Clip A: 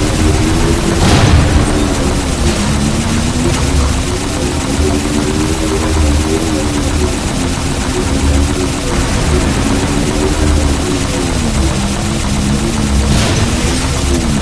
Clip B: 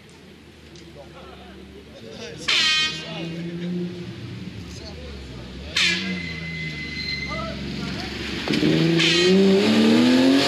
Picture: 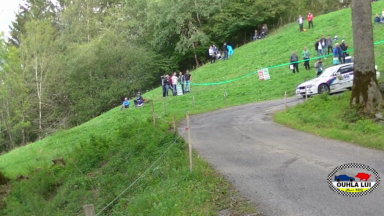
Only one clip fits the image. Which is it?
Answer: B